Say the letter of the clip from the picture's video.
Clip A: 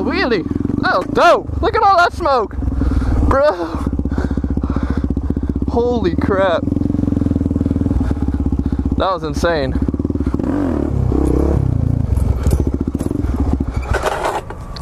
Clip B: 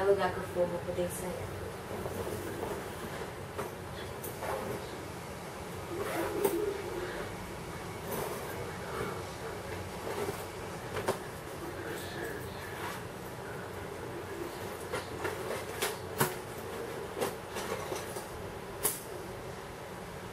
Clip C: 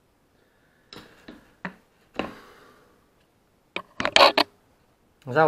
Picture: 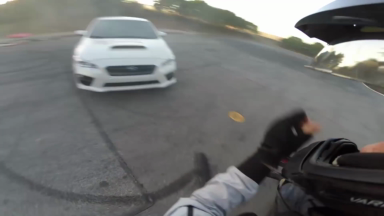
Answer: A